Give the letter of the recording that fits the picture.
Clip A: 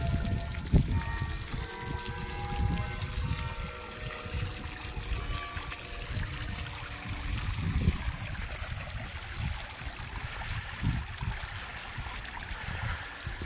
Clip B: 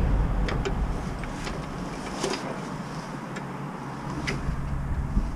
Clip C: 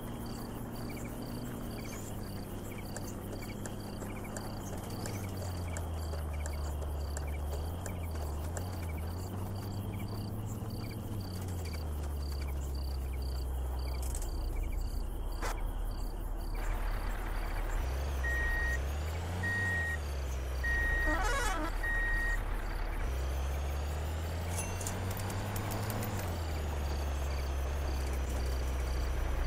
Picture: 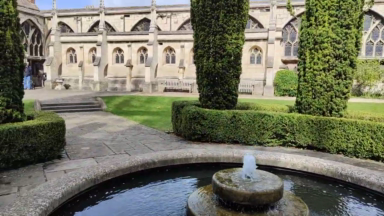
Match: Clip A